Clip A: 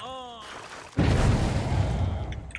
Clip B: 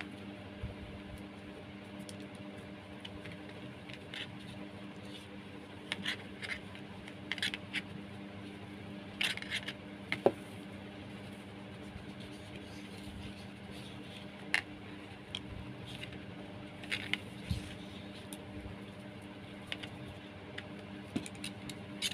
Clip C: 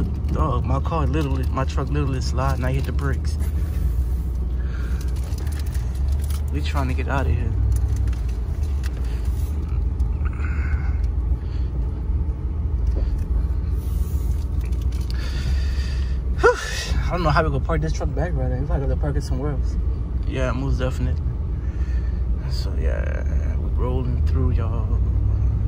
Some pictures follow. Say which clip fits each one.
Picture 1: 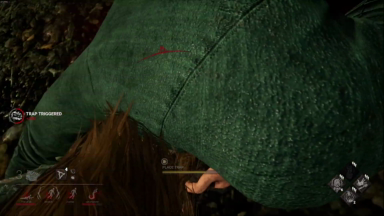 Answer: A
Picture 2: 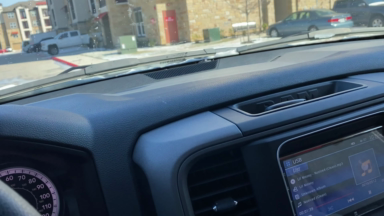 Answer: C